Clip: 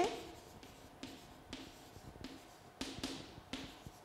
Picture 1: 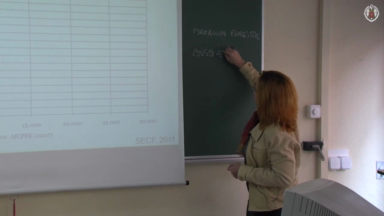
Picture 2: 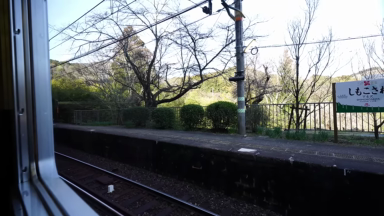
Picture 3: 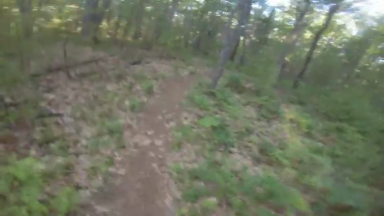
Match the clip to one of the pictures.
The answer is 1